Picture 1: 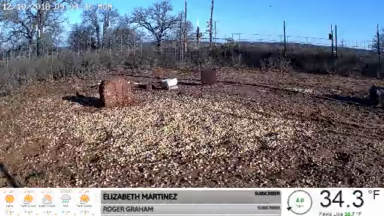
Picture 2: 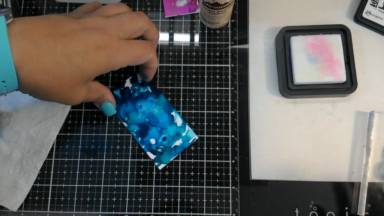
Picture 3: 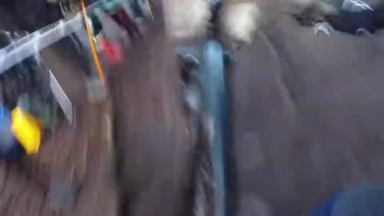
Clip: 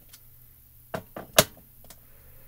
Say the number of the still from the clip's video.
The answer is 2